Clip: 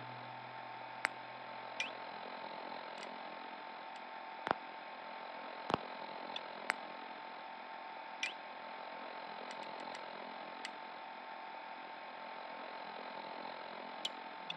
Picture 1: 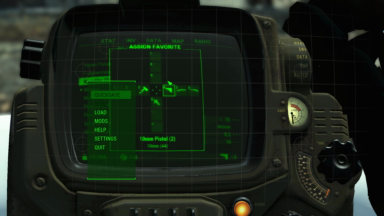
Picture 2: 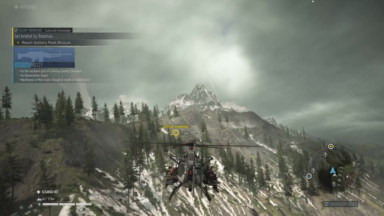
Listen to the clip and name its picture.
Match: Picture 1